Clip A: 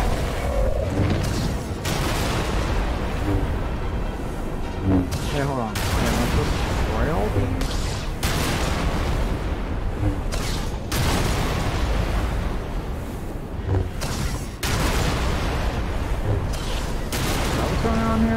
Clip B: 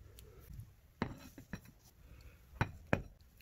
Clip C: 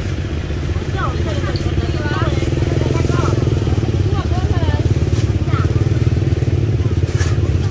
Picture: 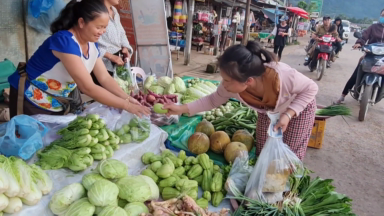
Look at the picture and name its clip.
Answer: C